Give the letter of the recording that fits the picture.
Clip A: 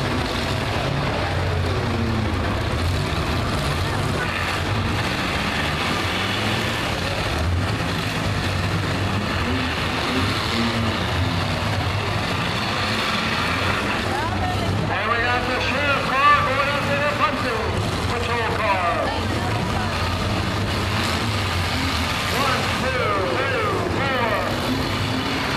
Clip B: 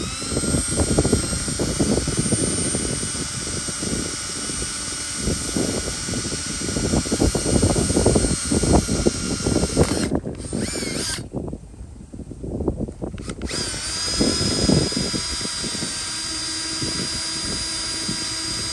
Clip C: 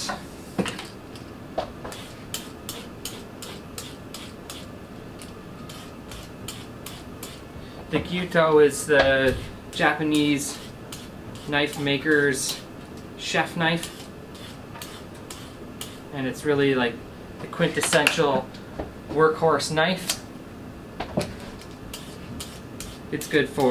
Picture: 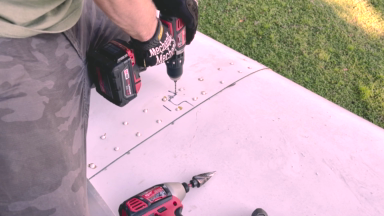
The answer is B